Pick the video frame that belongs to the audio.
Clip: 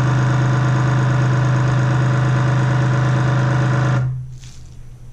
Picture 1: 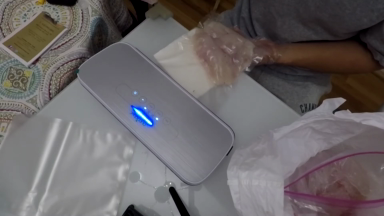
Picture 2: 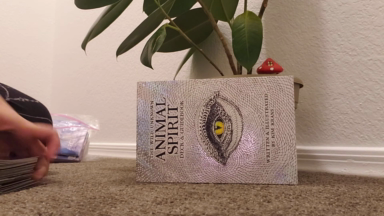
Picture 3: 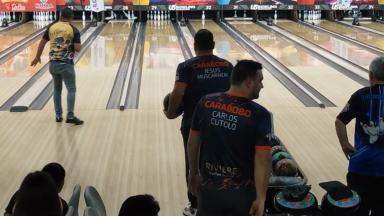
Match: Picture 1